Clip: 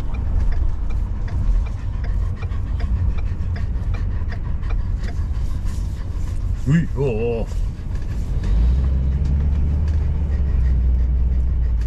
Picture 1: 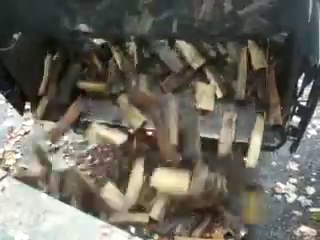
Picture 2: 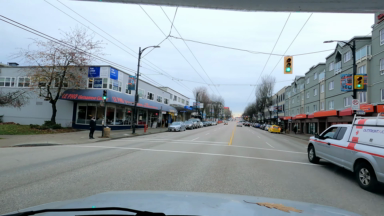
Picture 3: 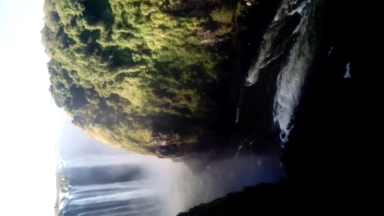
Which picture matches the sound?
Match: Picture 2